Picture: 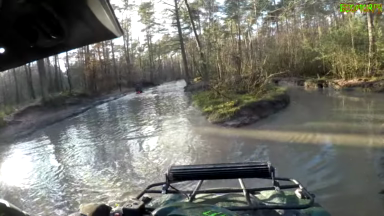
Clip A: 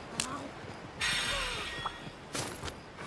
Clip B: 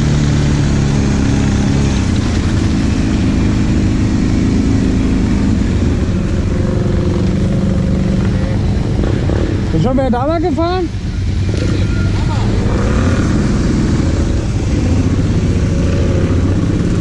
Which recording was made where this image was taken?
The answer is B